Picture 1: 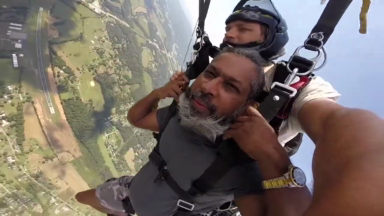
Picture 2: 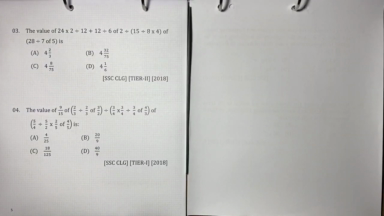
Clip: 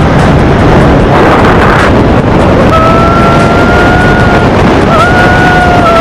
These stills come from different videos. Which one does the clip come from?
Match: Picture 1